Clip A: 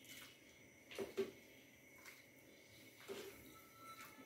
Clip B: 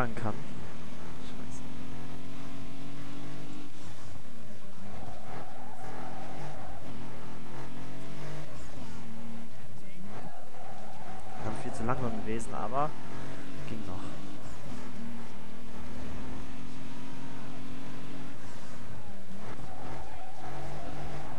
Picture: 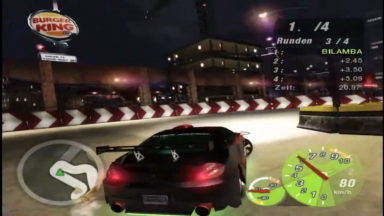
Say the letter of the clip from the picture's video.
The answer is B